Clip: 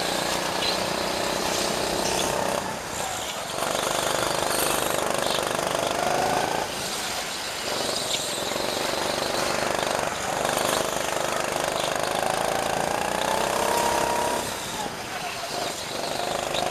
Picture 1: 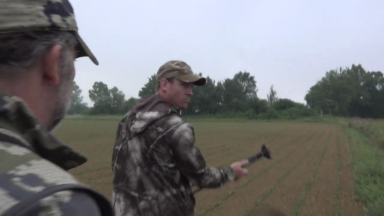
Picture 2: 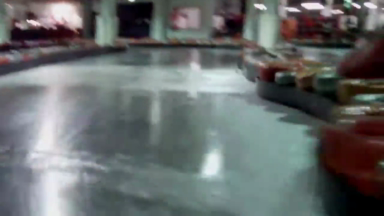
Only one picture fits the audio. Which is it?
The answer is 2